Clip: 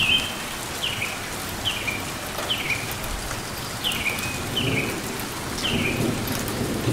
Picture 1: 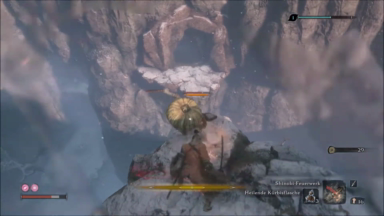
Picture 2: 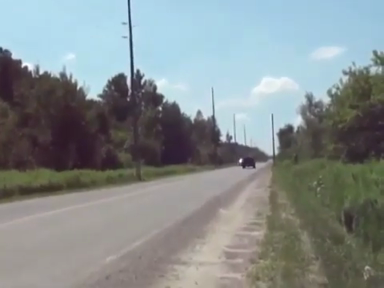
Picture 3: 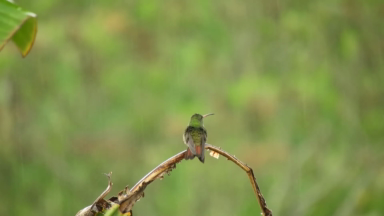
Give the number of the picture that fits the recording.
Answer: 3